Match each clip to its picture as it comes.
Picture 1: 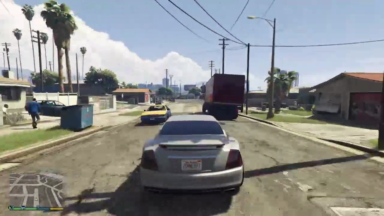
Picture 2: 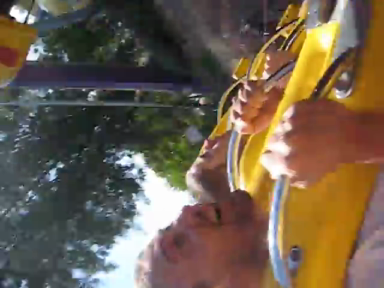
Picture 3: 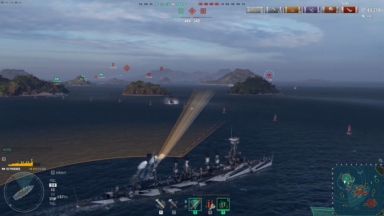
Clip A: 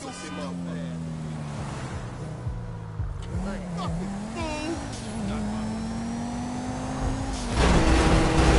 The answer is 1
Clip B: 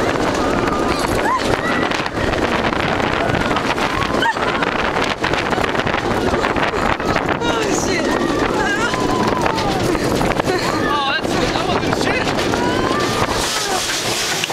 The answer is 2